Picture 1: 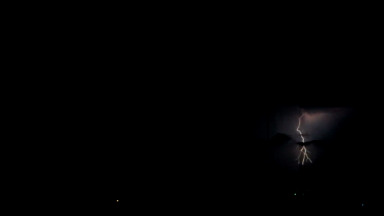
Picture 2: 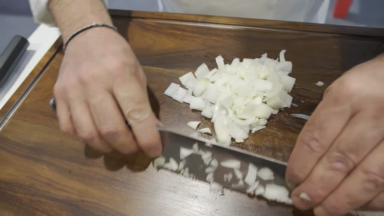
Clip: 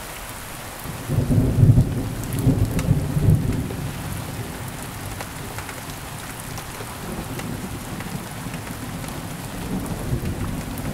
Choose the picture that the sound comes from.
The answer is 1